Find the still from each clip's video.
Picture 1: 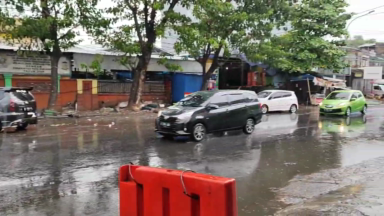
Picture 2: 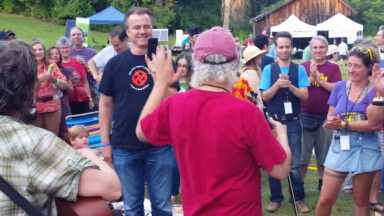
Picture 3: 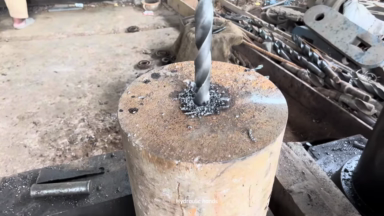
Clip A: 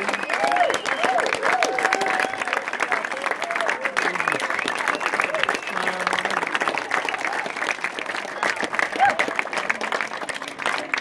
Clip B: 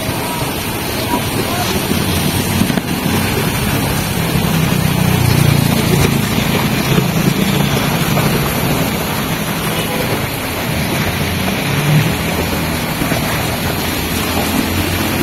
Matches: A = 2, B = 1